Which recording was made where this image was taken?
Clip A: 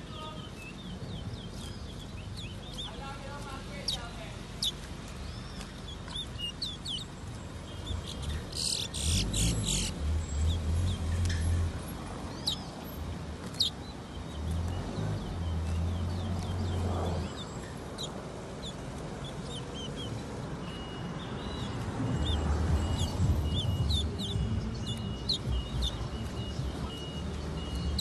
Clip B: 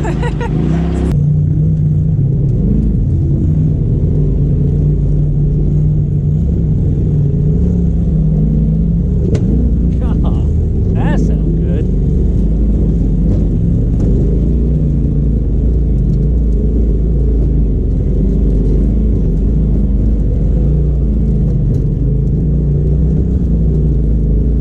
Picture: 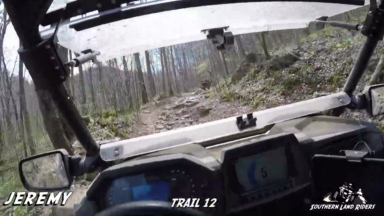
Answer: B